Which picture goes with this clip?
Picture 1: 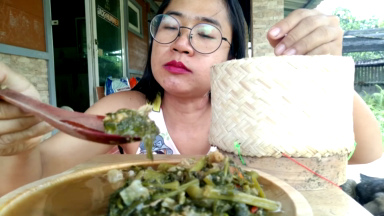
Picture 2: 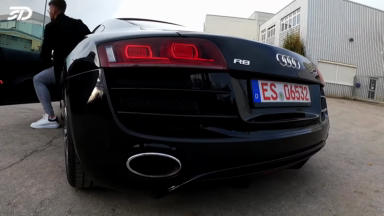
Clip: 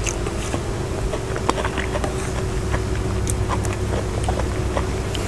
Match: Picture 1